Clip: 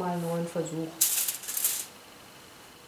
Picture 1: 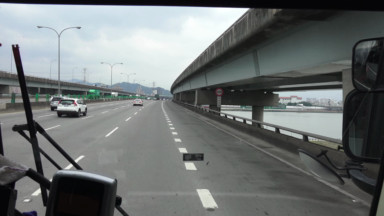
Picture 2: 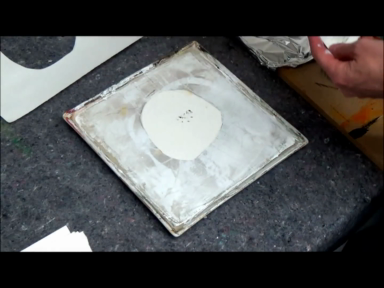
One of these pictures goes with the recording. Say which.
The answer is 2